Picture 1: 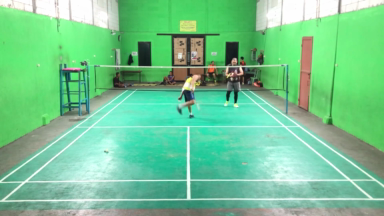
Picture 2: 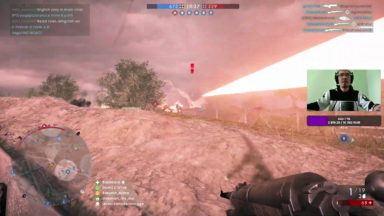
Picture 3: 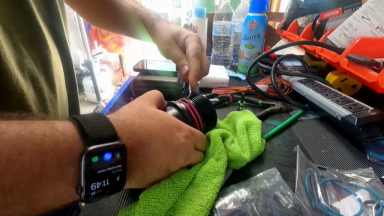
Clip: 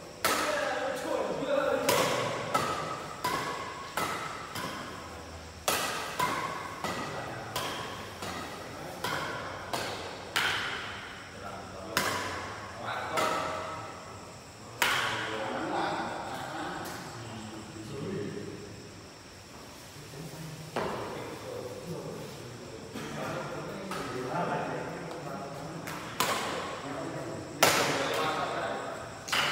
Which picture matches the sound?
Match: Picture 1